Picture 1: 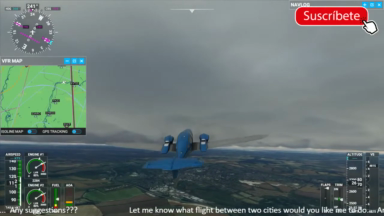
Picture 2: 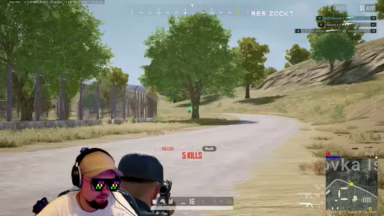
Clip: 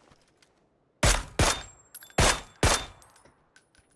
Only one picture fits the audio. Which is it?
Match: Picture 2